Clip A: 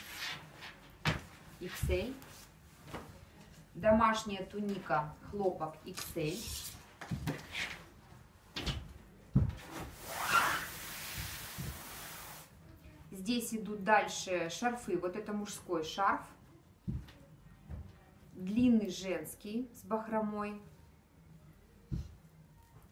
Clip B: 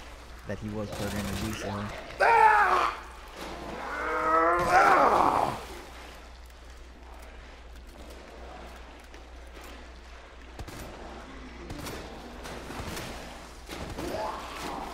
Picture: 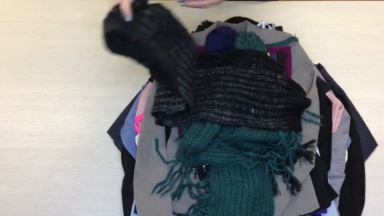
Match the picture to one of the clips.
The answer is A